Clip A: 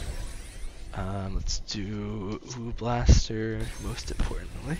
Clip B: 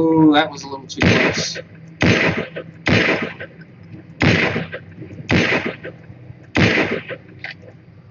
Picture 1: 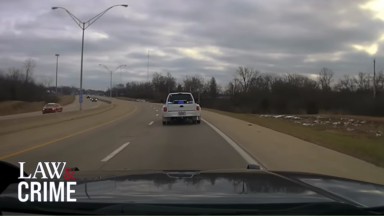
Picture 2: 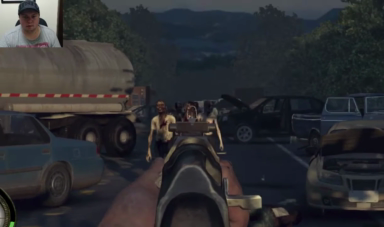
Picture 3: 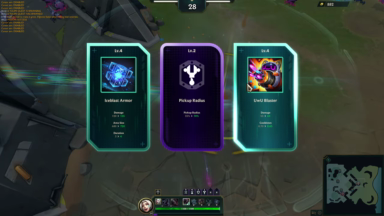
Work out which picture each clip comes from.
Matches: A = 3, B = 2